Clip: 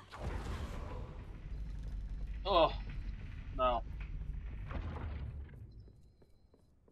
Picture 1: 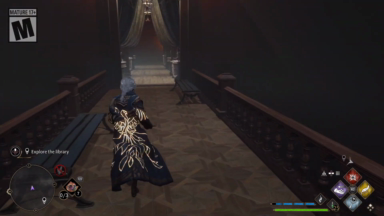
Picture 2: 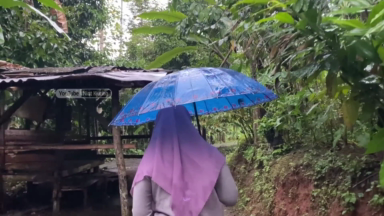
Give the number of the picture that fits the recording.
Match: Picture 1